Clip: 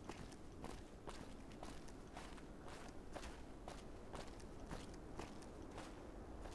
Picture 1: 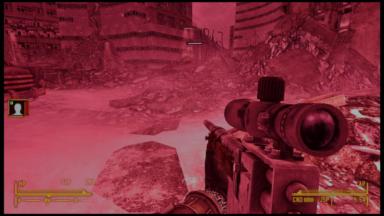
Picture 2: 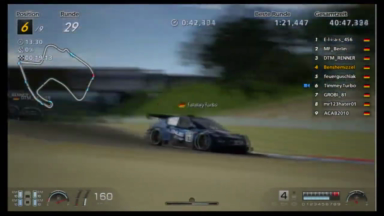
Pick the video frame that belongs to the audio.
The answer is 1